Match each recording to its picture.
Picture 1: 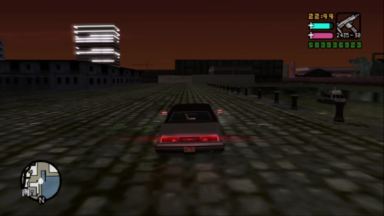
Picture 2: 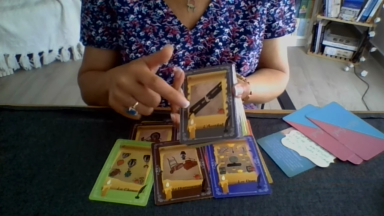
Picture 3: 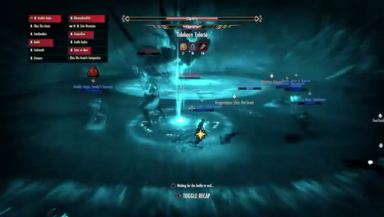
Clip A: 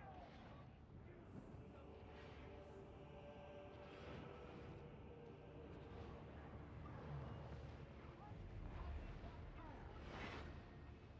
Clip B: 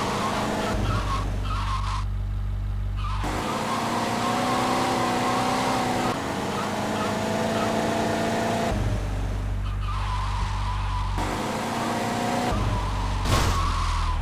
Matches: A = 3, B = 1